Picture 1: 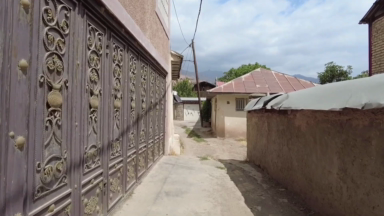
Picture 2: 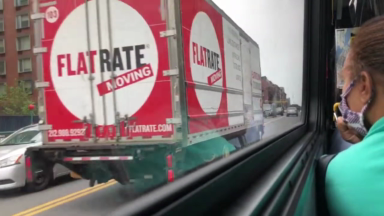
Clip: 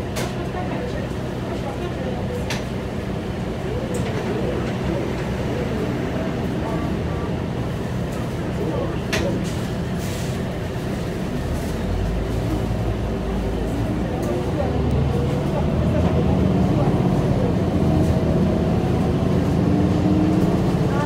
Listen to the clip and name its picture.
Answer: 2